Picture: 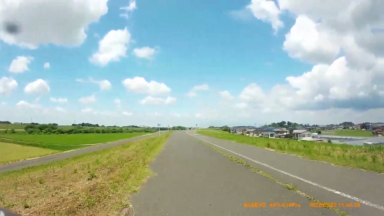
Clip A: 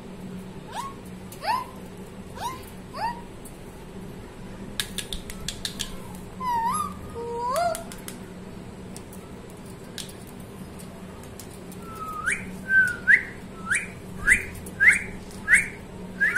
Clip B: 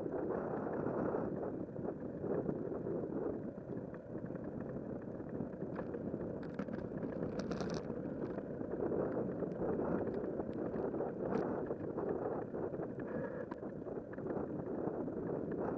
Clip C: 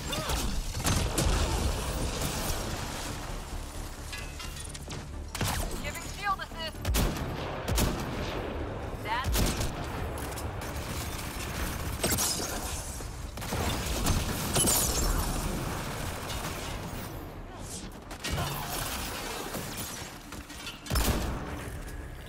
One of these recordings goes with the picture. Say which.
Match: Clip B